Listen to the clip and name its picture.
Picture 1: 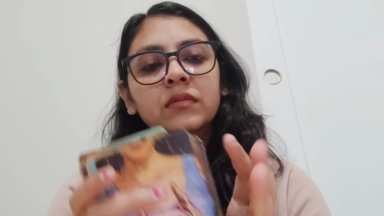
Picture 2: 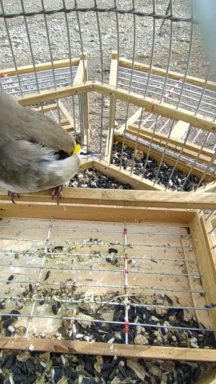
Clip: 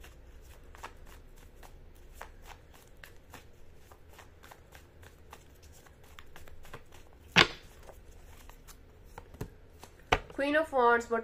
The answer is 1